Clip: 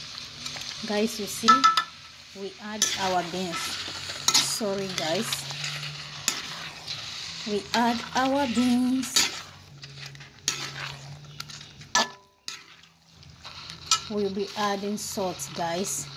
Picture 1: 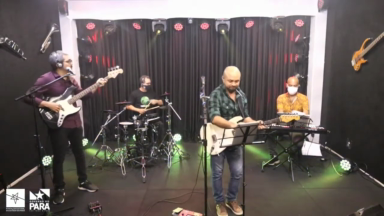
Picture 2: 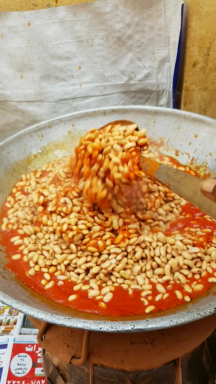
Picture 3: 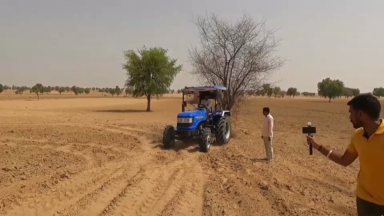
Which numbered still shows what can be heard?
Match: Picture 2